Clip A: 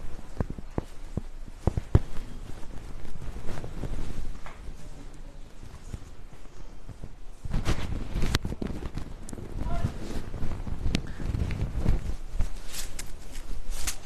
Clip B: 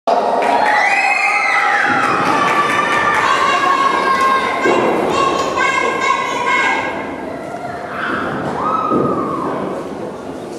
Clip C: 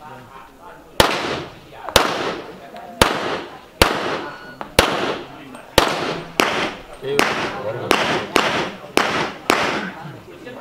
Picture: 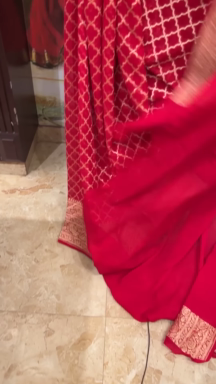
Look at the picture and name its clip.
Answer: A